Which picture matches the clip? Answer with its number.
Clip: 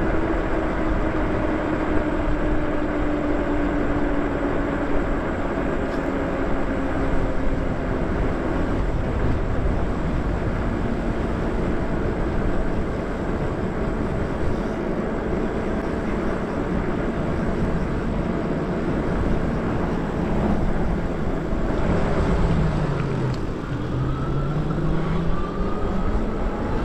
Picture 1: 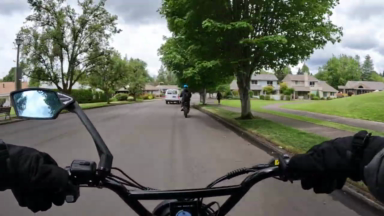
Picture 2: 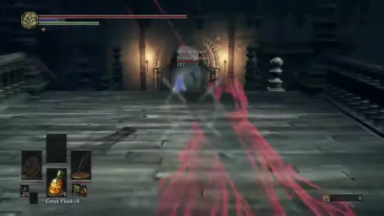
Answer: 1